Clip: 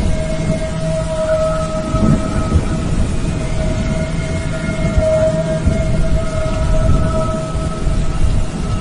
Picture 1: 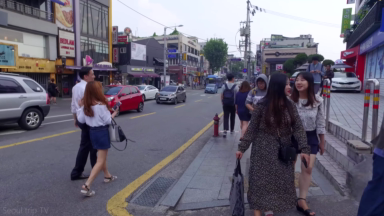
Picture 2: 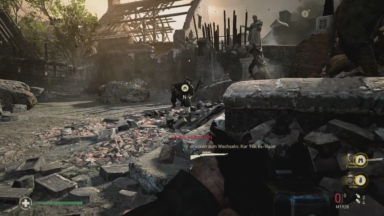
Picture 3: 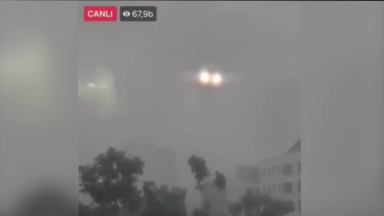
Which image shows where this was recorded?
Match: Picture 3